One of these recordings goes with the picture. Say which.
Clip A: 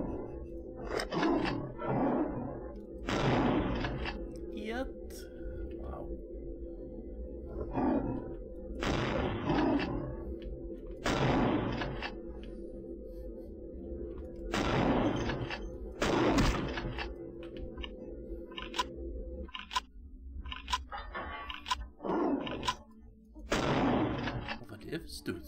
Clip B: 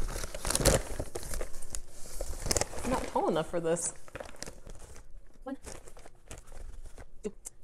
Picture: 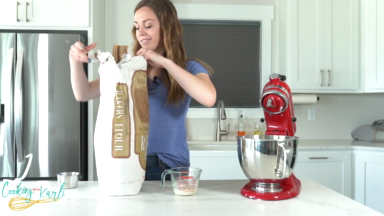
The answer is B